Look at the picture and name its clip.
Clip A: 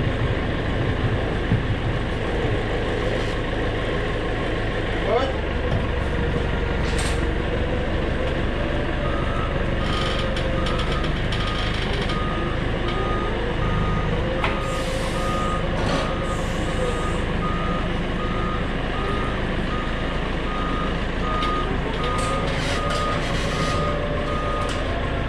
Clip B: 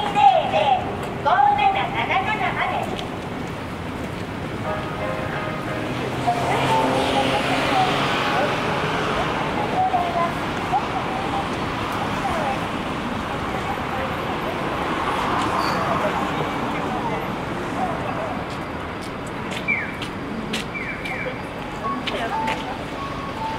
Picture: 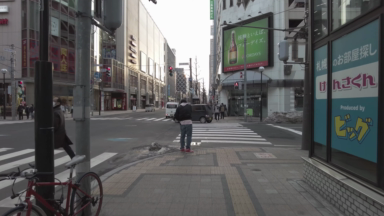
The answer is B